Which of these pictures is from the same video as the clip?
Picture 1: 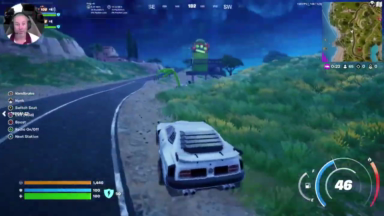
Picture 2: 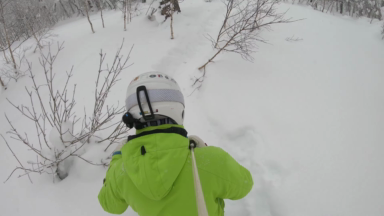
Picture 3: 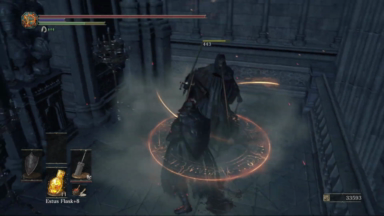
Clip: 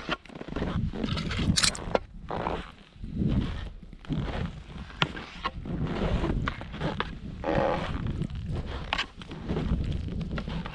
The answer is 2